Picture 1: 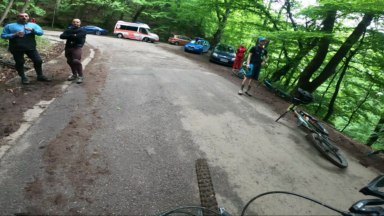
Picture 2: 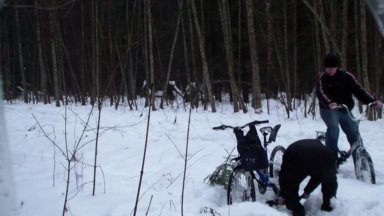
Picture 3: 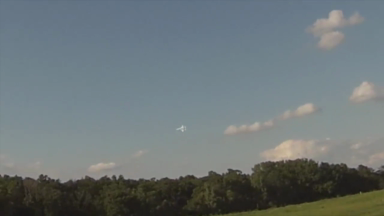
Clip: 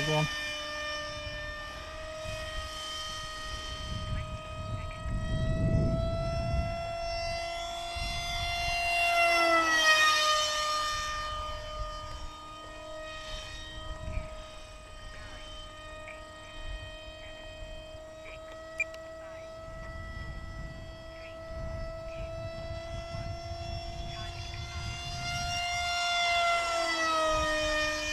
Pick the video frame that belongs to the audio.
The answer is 3